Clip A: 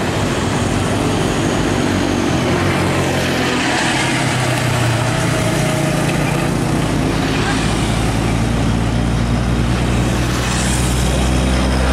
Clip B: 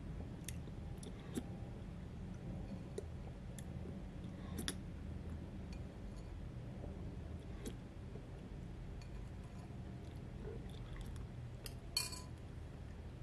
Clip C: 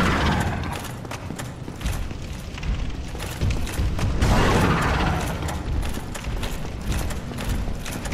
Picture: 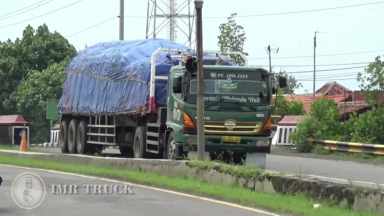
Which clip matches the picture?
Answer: A